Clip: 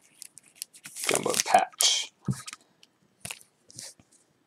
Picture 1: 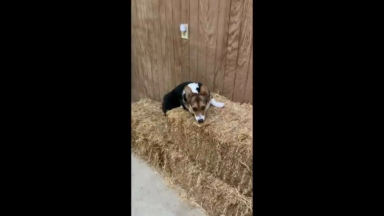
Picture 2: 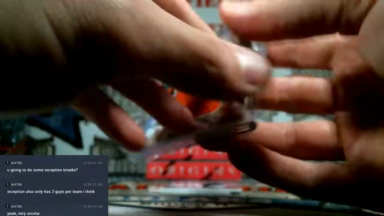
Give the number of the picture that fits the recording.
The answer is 2